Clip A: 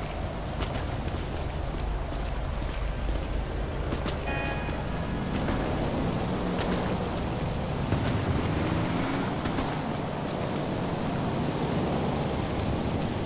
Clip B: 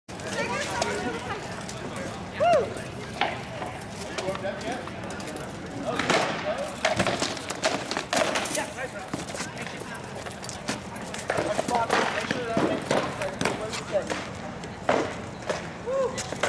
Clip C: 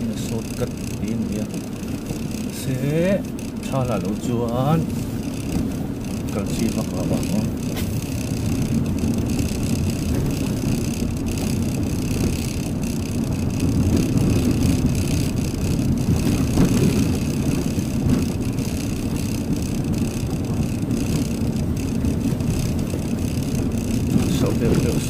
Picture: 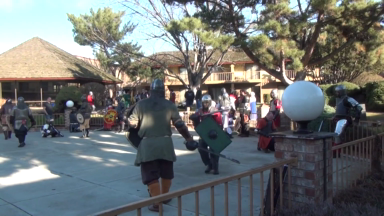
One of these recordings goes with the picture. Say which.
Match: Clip B